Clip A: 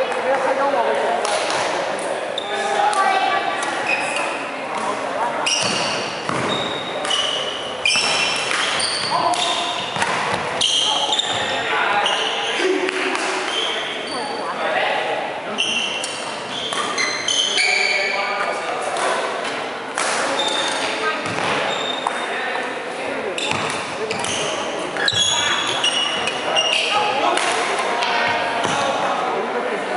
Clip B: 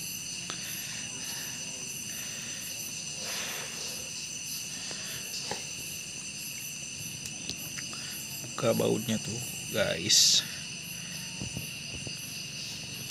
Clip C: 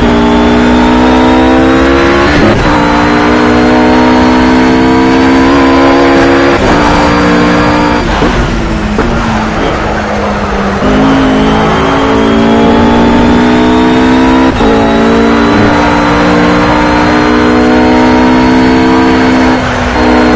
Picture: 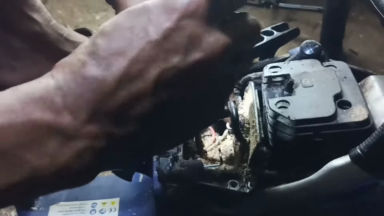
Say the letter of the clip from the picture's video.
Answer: B